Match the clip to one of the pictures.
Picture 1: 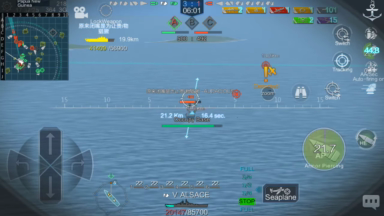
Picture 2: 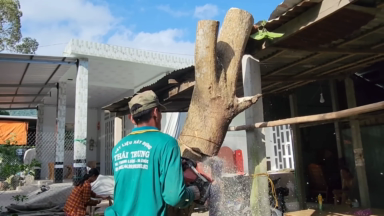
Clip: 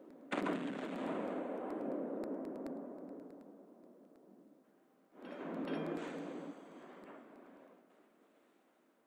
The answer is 1